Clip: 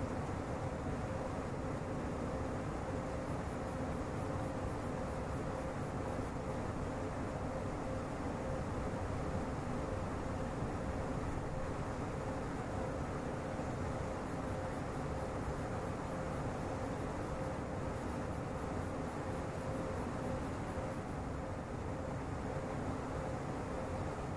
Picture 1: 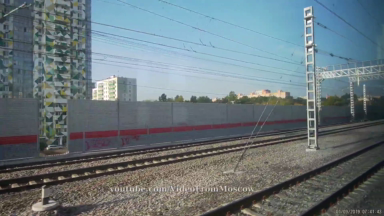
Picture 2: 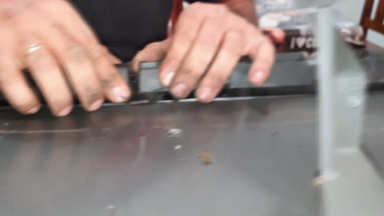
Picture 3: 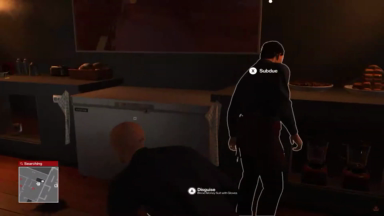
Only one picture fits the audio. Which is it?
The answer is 1